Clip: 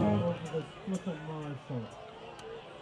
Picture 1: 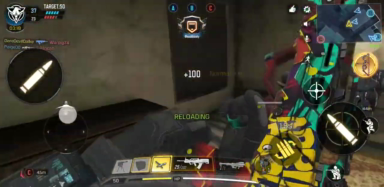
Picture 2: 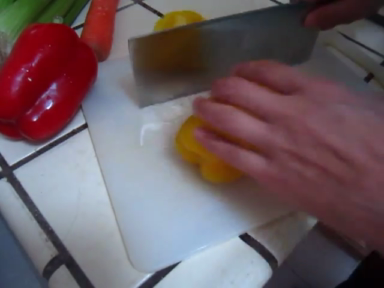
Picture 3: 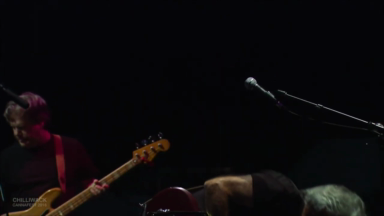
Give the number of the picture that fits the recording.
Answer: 3